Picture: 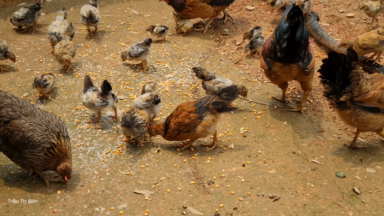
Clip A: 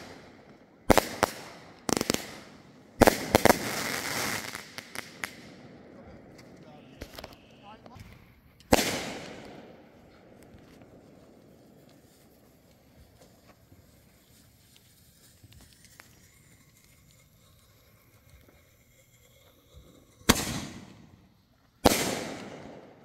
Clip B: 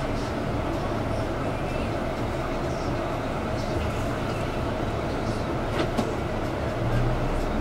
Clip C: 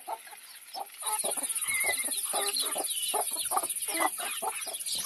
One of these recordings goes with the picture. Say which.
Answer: C